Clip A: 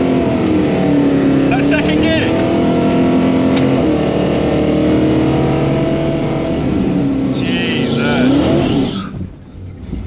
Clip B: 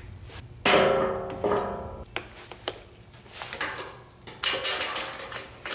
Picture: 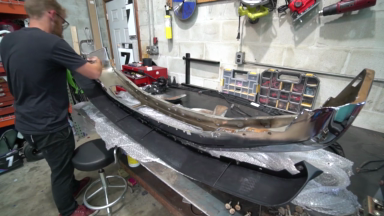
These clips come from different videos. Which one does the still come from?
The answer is B